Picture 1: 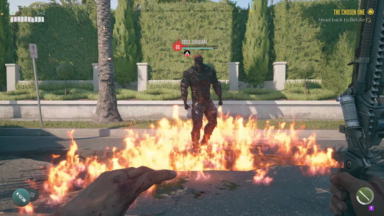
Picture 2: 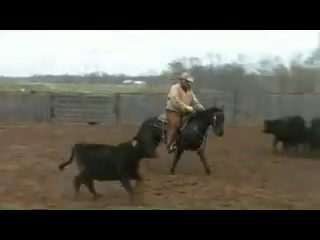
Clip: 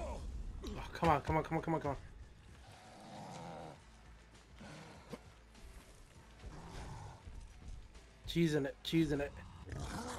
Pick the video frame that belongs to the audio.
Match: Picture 1